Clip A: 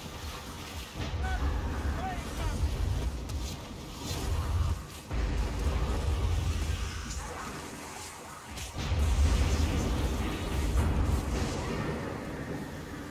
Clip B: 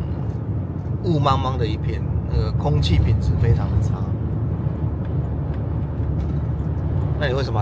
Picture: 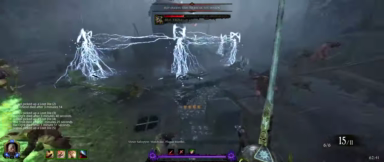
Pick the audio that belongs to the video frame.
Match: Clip A